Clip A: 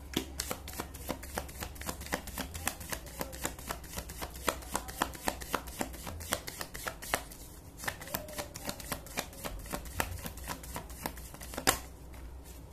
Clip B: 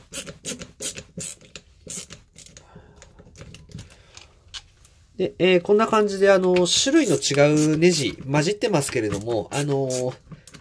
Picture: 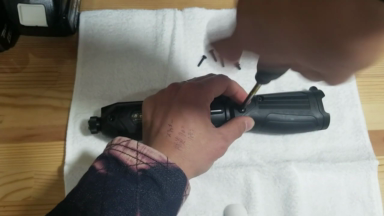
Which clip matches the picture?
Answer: B